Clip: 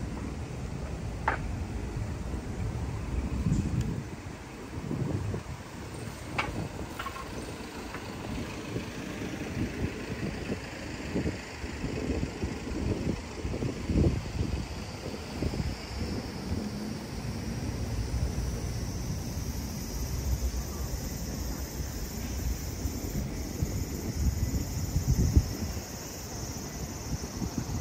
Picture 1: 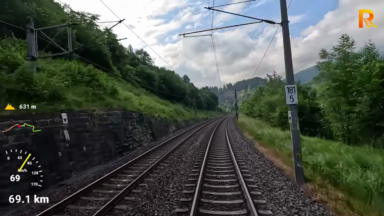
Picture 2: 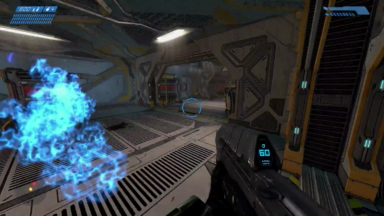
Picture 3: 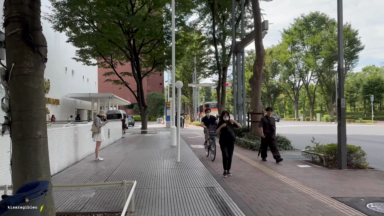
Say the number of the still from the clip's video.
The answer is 3